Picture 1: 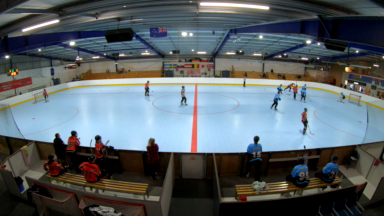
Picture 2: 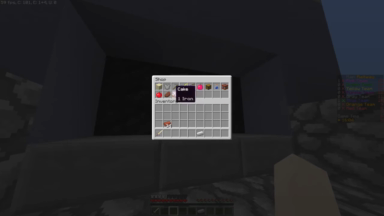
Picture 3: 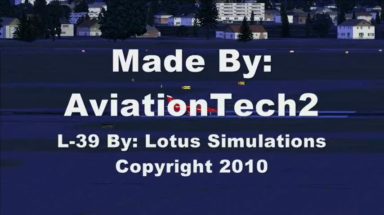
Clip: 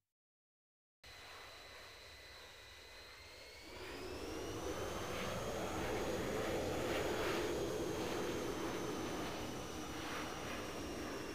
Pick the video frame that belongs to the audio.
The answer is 3